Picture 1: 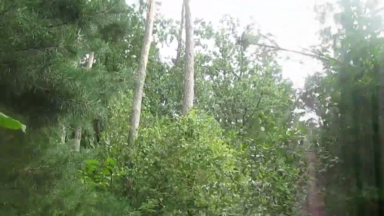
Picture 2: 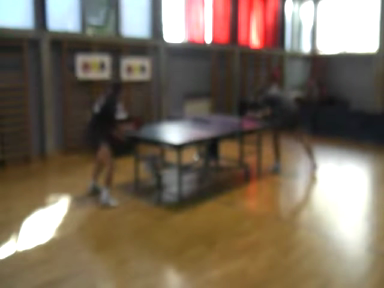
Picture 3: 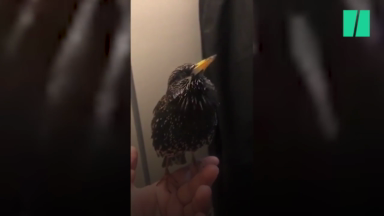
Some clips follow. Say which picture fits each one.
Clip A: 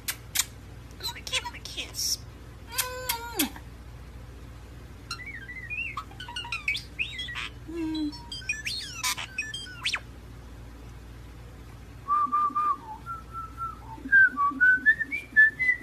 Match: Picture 3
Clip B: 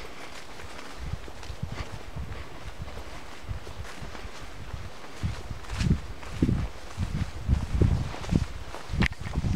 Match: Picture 1